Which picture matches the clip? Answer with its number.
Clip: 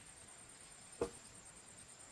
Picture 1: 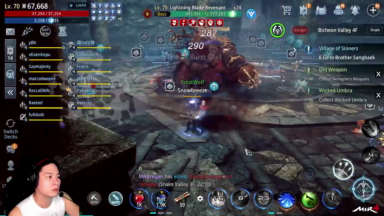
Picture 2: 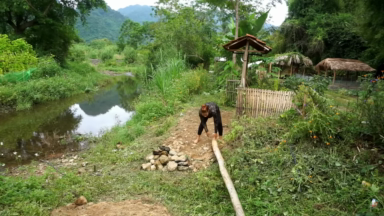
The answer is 2